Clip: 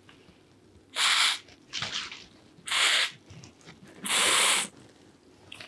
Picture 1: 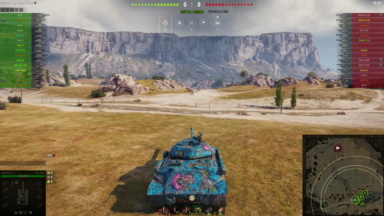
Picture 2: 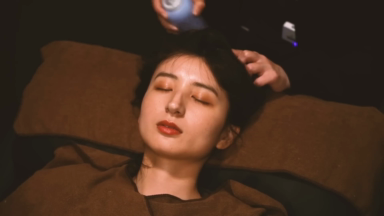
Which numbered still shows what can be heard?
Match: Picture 2